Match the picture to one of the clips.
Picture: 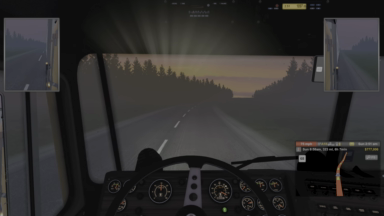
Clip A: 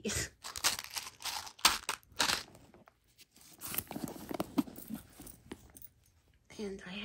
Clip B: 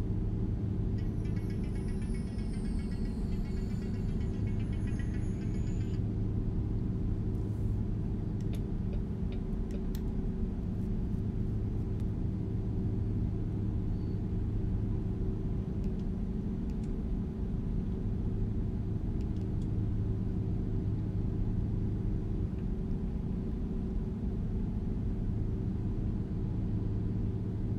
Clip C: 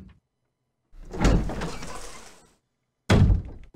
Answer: B